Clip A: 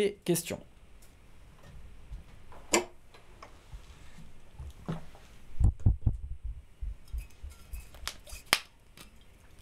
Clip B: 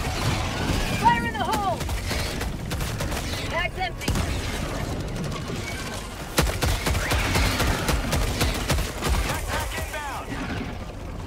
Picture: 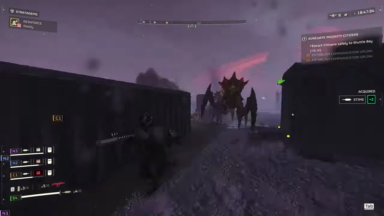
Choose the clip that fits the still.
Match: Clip B